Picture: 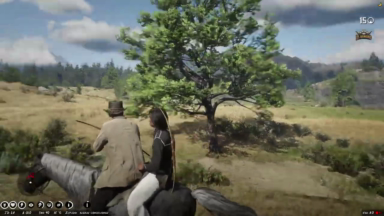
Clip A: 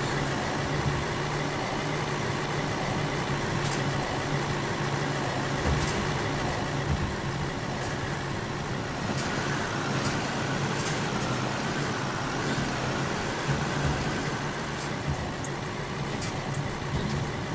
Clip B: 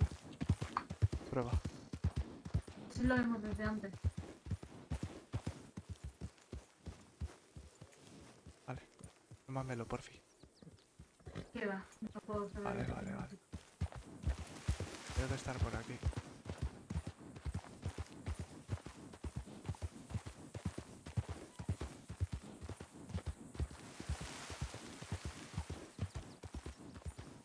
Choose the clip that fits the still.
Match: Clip B